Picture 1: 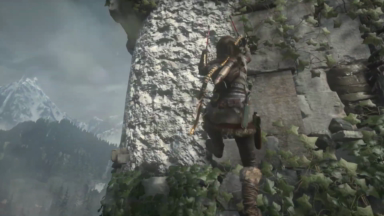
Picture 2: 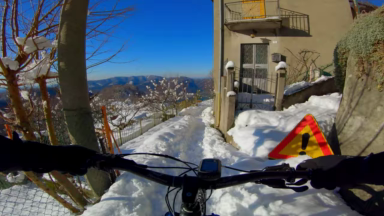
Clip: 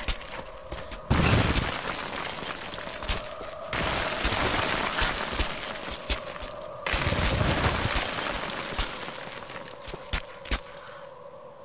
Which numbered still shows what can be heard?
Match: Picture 1